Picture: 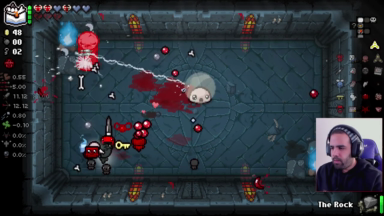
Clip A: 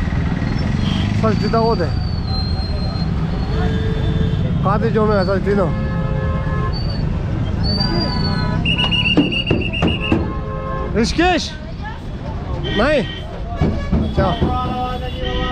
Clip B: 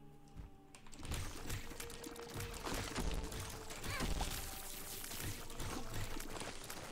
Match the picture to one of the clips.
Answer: B